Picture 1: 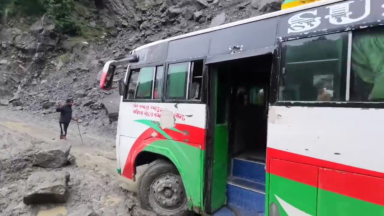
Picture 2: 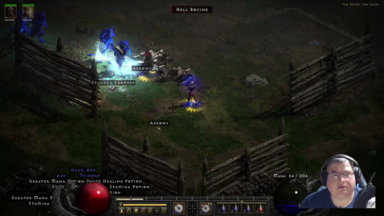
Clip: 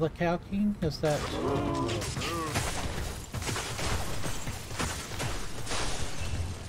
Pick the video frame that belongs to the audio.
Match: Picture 2